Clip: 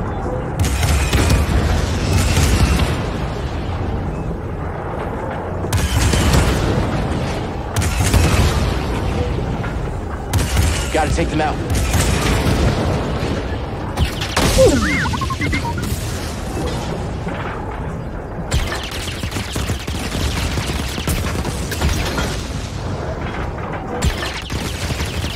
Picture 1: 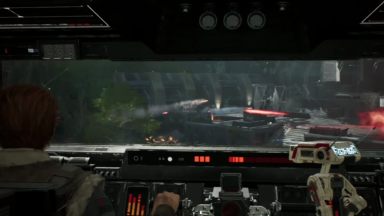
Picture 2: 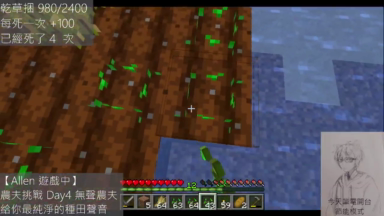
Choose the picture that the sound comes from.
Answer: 1